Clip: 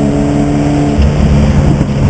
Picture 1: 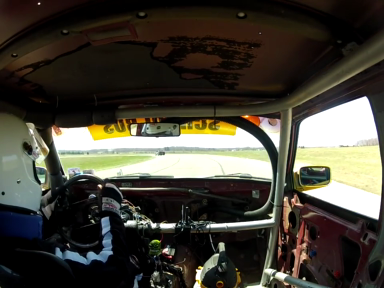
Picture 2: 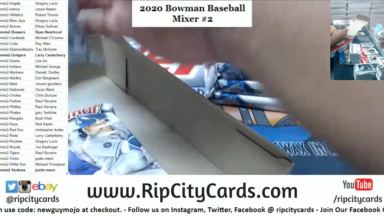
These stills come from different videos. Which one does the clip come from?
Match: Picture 1